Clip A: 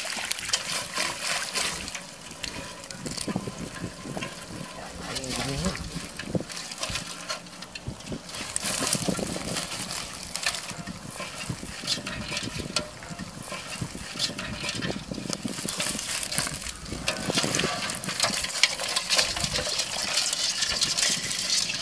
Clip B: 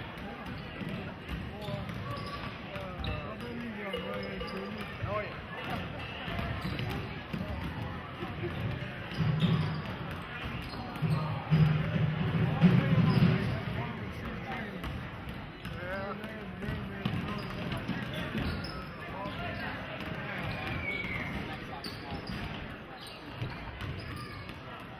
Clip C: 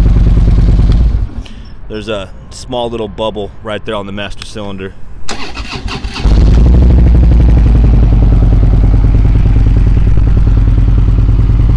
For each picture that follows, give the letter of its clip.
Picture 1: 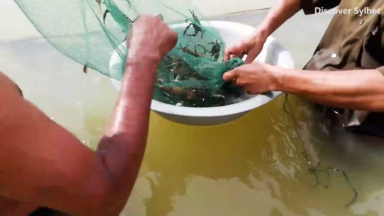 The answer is A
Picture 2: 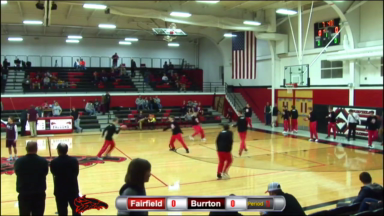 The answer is B